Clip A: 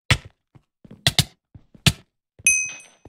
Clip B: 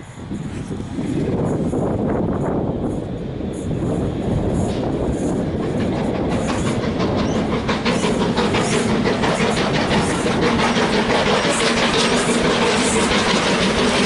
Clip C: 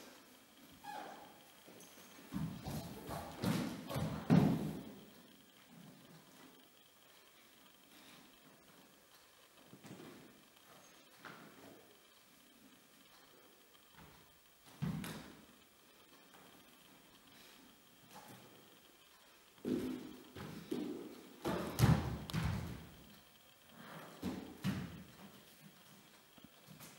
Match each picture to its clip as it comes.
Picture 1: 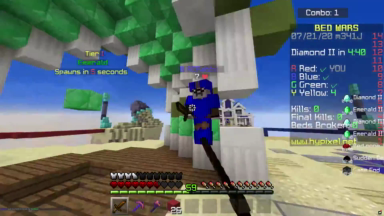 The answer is A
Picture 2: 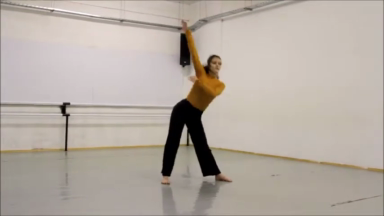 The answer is C